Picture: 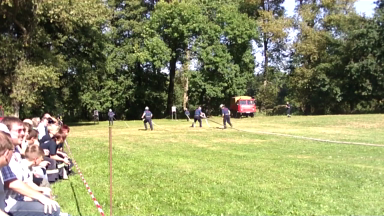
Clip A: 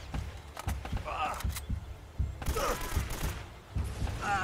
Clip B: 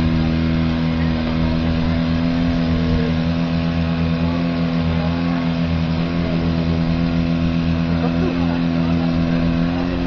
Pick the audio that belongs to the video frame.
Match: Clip B